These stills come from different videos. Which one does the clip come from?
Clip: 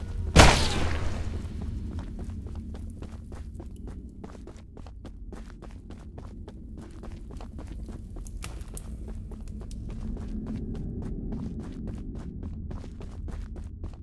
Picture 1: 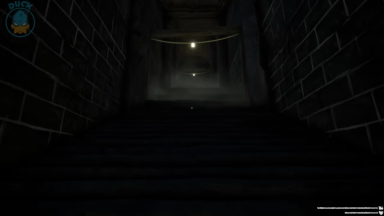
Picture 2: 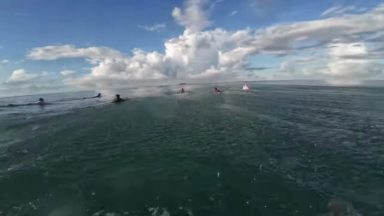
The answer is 1